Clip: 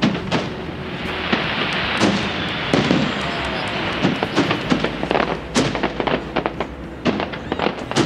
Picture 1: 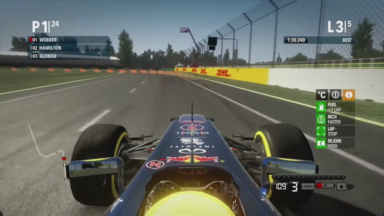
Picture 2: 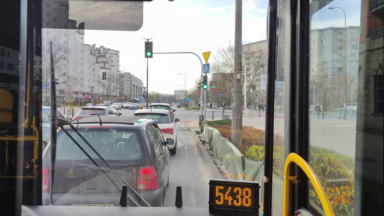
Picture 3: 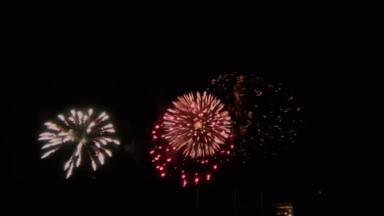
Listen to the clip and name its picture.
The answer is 3